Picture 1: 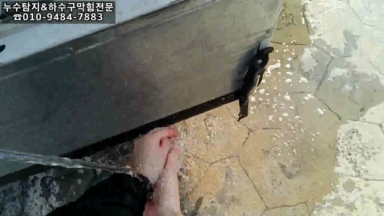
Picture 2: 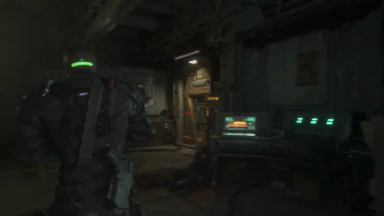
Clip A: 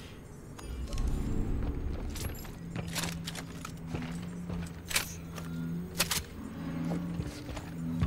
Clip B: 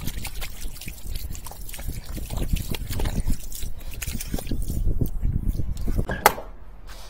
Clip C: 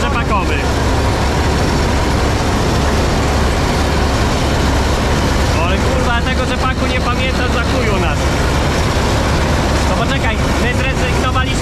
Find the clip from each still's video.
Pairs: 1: B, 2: A